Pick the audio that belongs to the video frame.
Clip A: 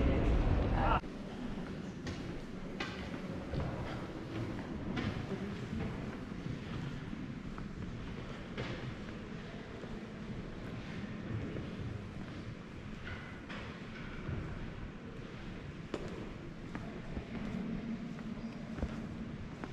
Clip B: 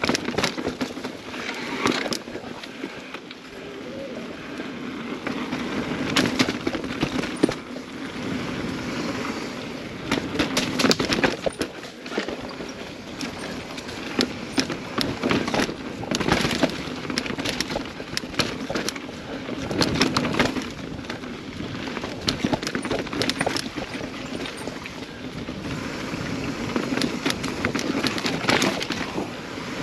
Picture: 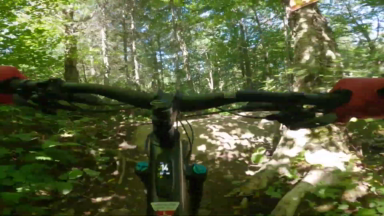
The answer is B